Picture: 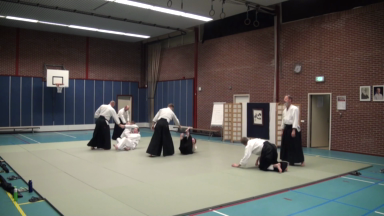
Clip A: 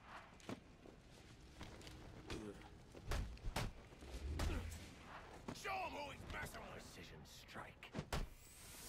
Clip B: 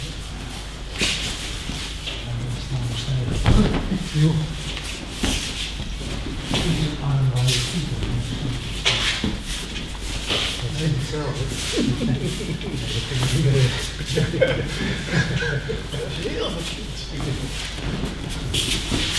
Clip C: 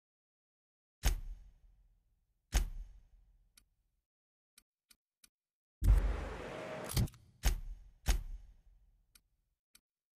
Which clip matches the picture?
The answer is B